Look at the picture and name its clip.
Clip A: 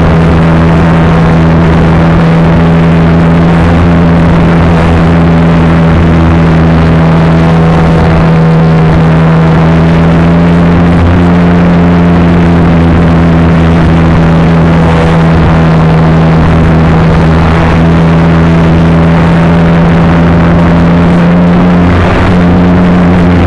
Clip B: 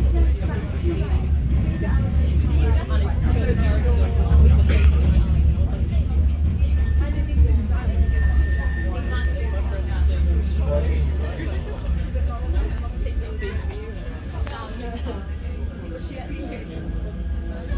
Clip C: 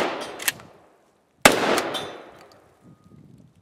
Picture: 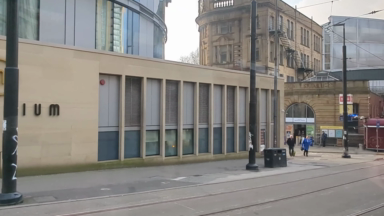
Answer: B